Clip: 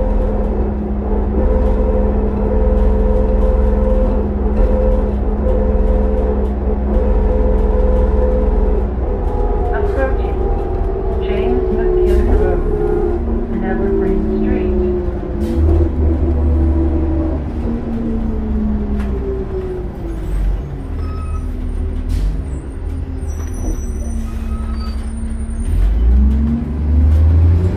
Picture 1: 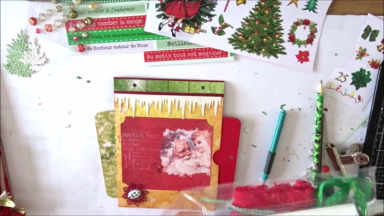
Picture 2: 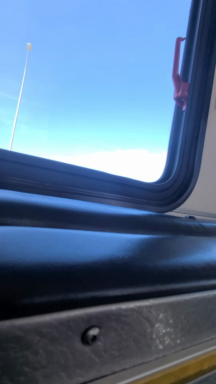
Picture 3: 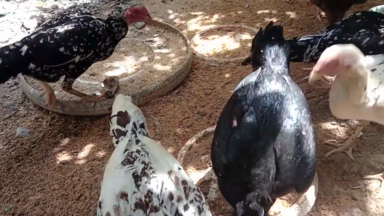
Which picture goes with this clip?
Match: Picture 2